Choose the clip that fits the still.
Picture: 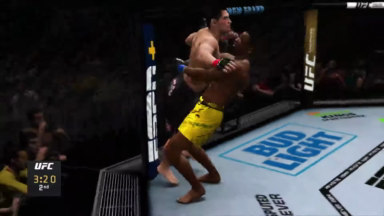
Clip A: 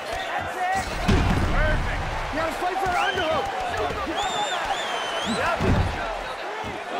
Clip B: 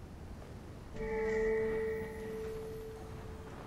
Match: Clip A